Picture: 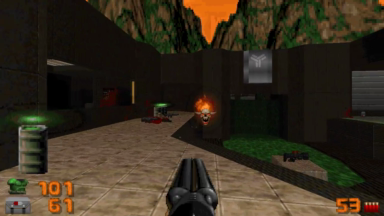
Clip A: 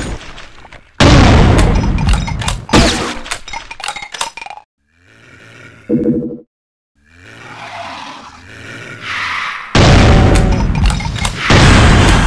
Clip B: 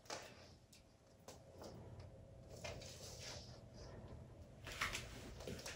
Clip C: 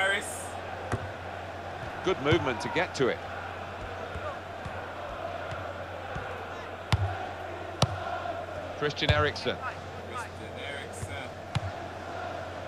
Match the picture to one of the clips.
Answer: A